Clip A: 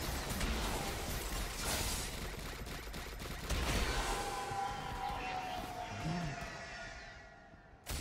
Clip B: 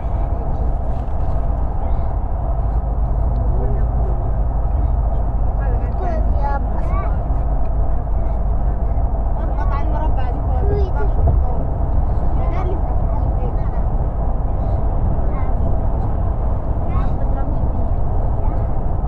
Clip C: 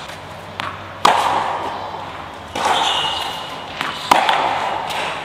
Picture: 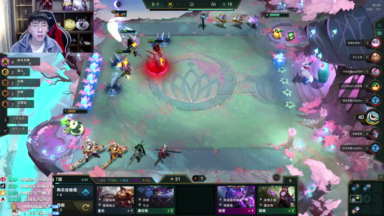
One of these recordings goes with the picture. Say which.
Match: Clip A